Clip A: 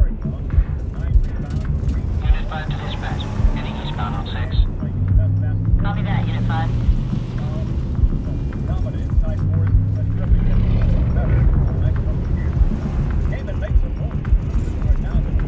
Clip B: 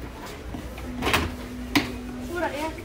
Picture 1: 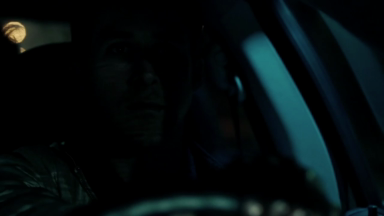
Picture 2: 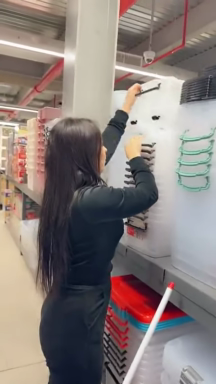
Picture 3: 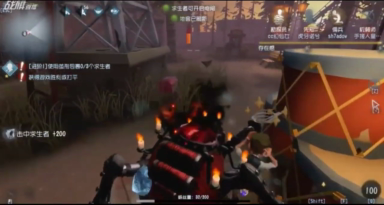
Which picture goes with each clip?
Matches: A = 1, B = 2